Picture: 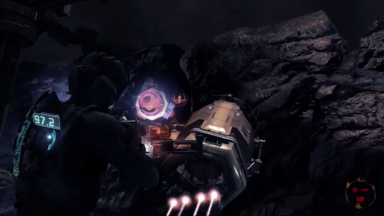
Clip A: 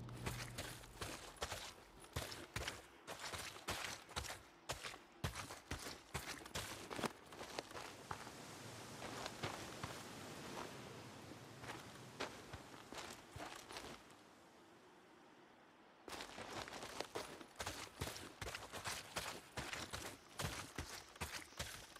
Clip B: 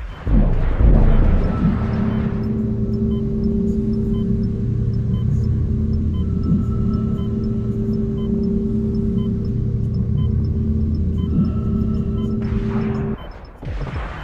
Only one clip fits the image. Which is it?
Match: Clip B